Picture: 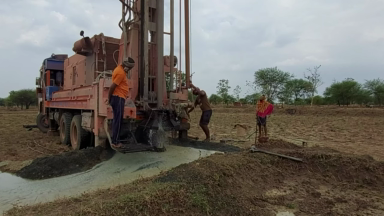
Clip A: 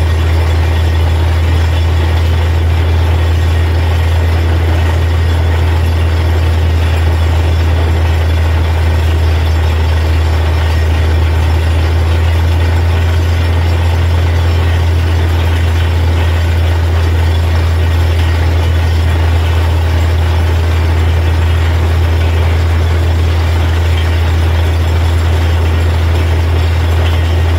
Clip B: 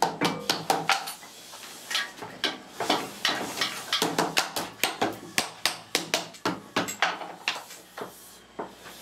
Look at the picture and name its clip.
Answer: A